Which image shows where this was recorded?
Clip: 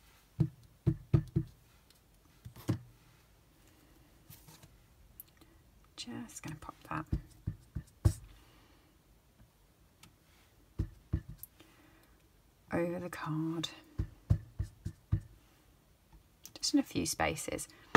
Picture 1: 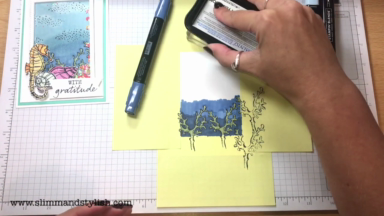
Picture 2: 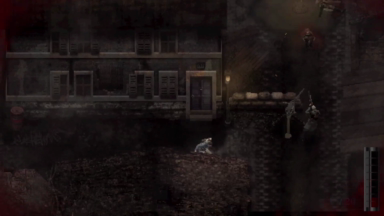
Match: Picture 1